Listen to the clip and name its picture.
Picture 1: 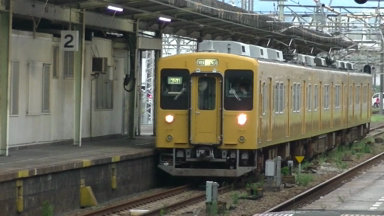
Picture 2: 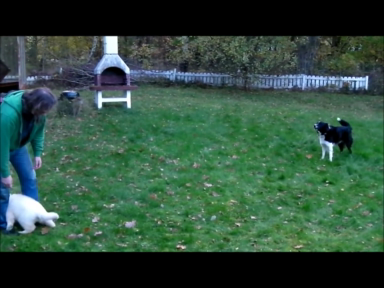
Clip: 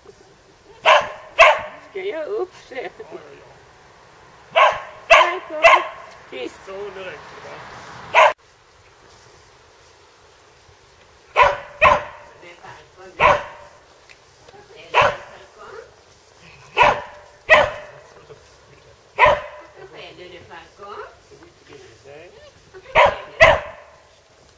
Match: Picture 2